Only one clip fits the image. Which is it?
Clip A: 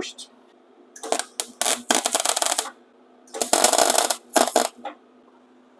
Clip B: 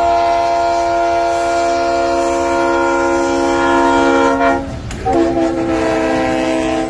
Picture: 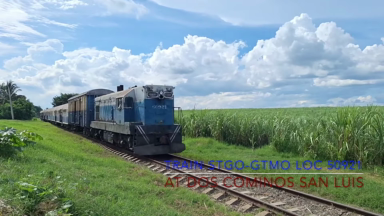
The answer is B